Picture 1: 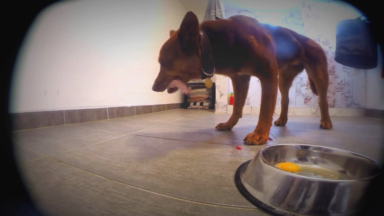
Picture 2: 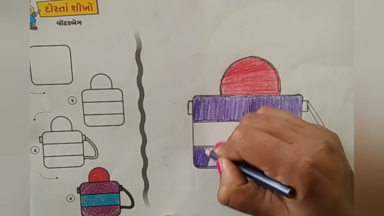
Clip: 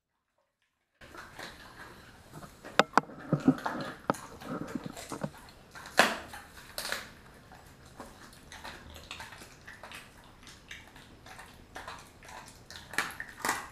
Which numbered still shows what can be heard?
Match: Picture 1